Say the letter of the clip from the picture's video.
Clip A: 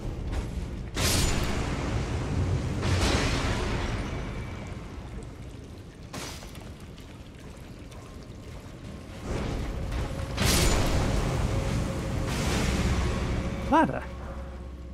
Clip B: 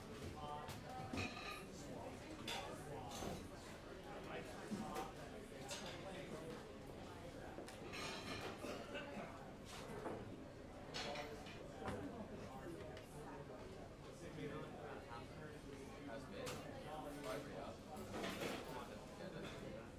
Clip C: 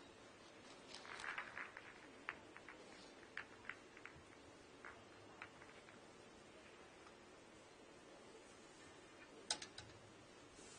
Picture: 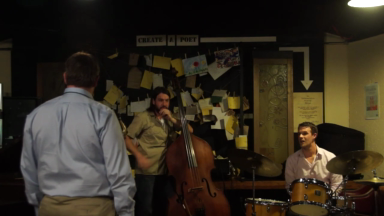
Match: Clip B